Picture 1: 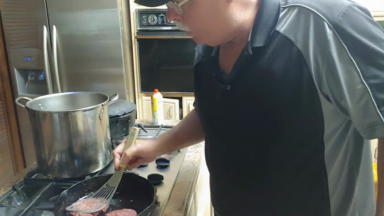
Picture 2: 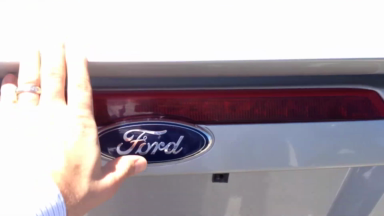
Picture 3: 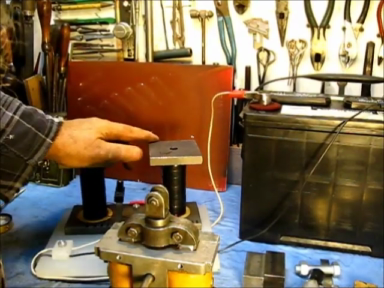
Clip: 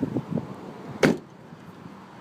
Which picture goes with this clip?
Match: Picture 2